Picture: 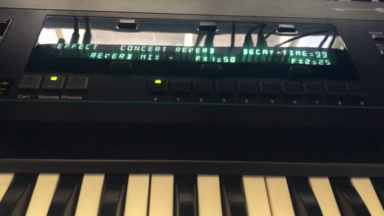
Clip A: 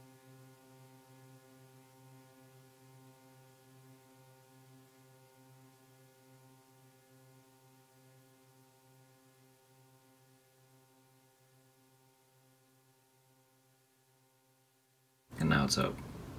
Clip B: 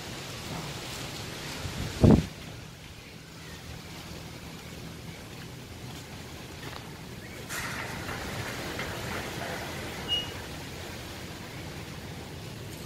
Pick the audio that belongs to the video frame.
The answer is A